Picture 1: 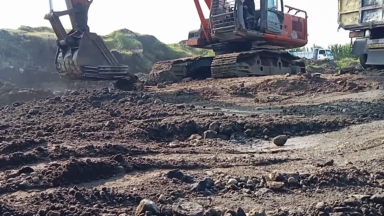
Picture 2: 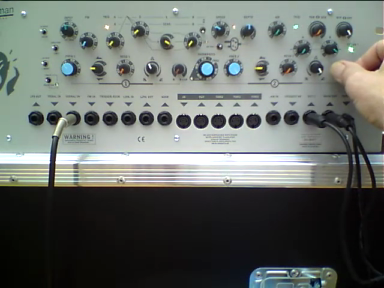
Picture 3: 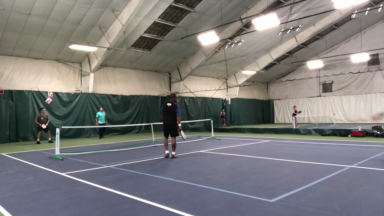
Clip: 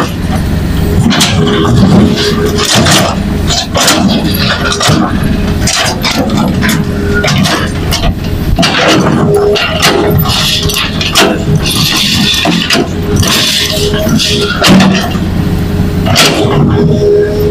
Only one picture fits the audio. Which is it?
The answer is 1